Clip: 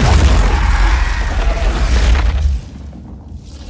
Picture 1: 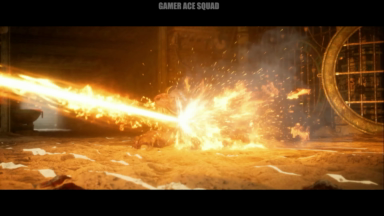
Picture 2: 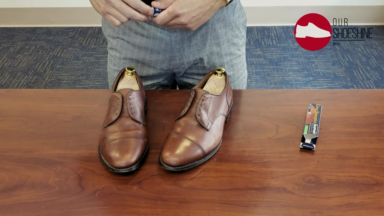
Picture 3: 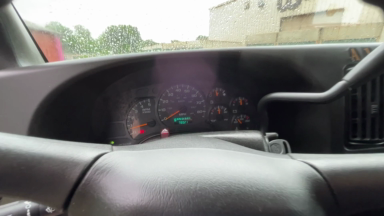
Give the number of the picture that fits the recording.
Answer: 1